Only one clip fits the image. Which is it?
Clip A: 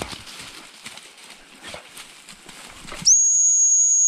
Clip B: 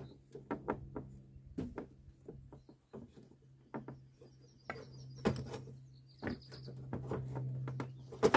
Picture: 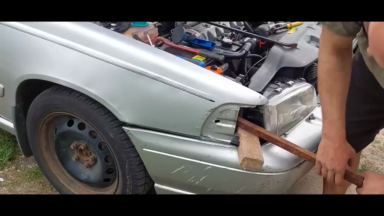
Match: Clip B